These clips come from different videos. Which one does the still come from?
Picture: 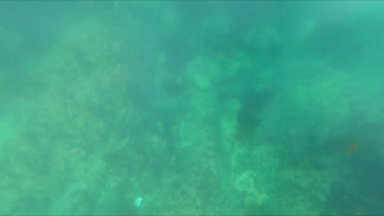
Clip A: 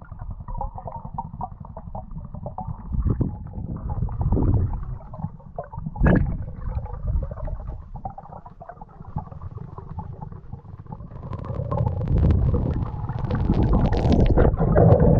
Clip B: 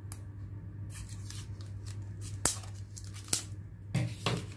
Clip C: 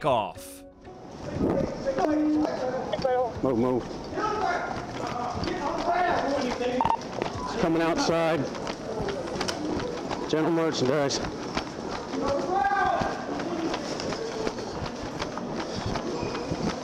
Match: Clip A